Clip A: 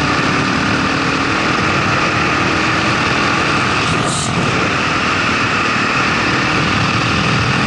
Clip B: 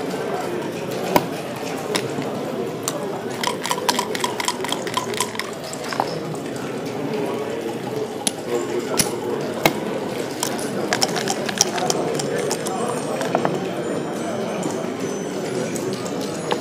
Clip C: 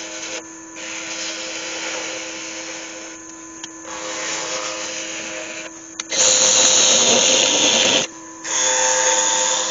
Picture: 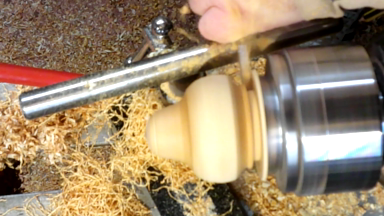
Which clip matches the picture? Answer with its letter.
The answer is C